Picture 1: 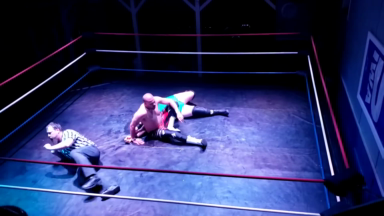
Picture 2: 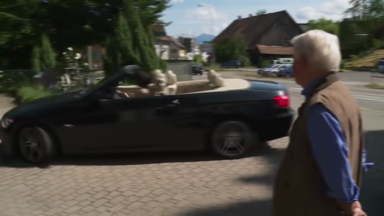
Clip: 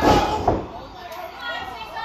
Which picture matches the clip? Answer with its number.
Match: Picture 1